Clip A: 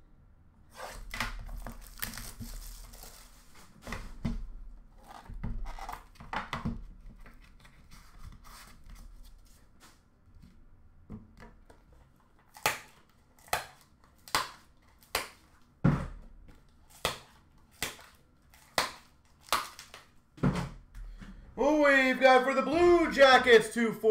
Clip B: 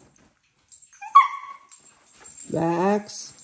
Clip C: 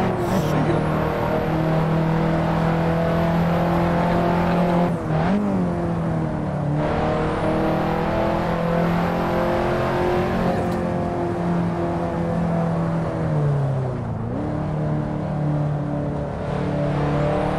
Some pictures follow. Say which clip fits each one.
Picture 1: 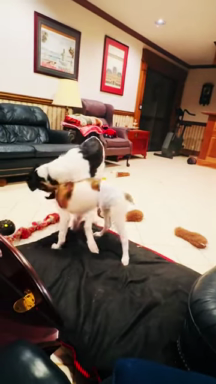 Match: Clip B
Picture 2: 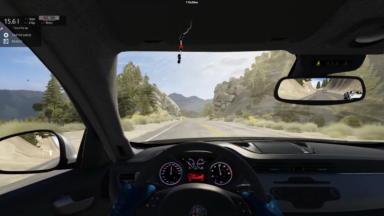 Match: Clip C